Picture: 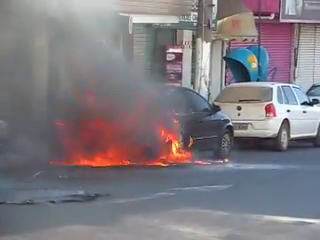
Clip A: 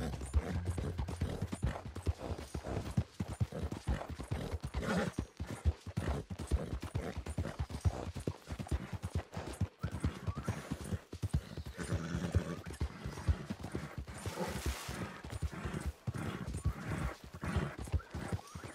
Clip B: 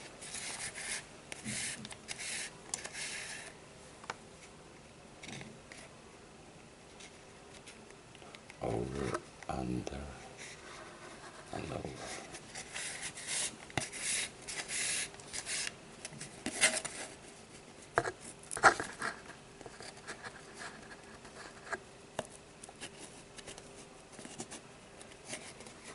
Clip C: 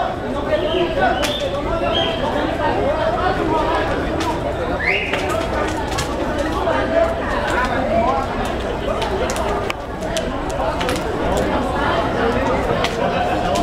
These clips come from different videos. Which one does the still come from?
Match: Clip C